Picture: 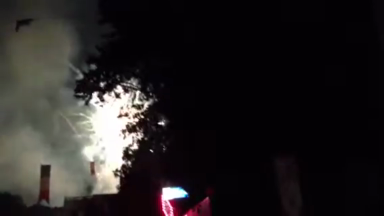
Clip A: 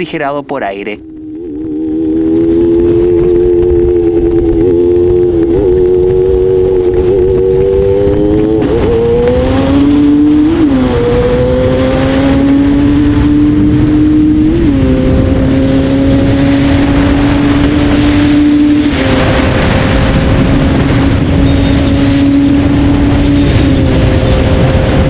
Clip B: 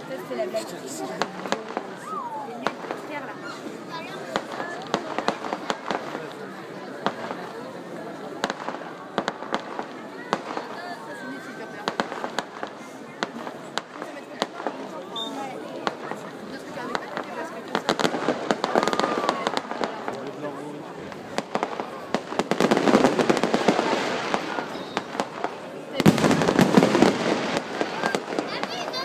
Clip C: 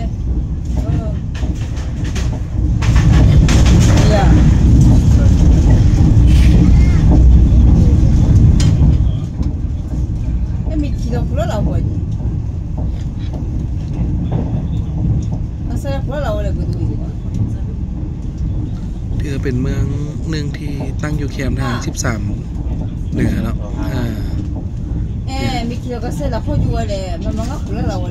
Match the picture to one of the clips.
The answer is B